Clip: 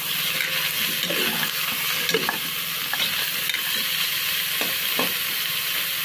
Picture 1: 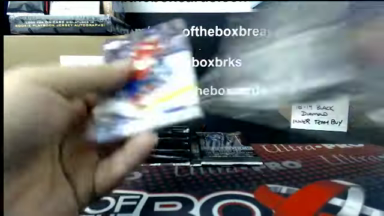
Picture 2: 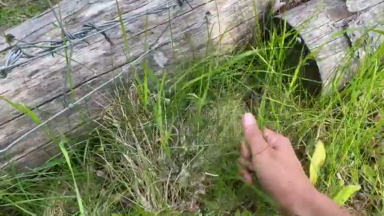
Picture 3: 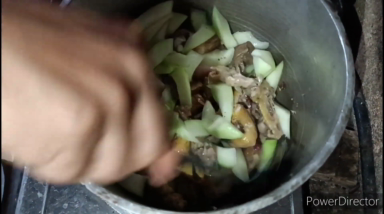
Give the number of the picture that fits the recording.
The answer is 3